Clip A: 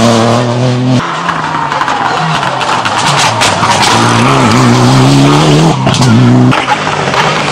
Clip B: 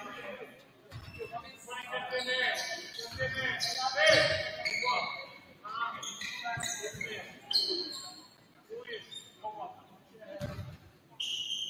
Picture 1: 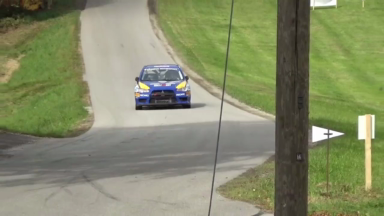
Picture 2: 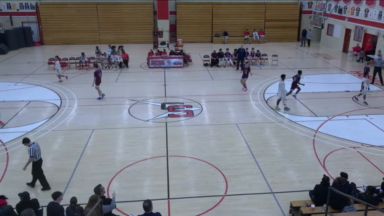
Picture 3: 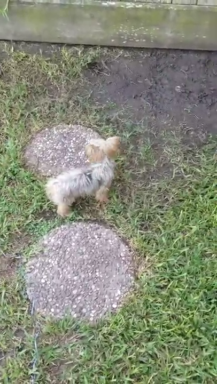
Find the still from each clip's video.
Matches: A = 1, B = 2